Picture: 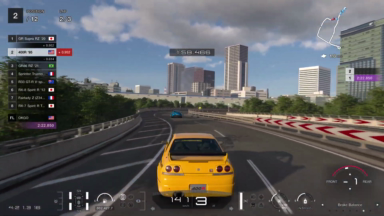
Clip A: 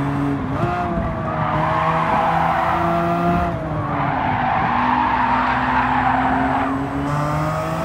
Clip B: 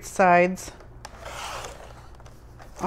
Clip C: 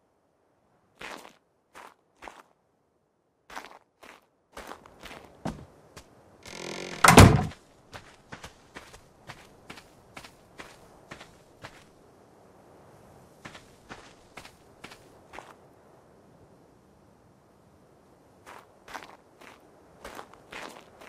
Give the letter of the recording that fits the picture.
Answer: A